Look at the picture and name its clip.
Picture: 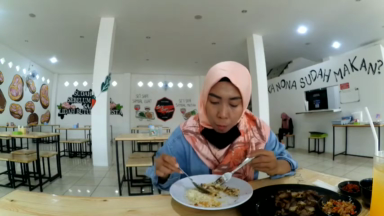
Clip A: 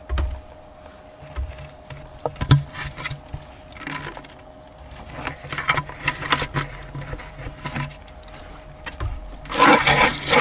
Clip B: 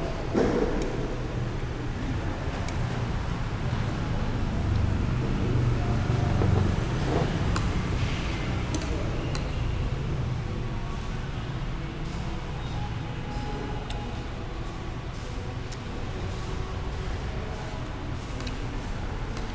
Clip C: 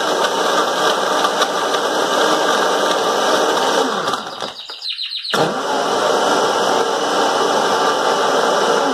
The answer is B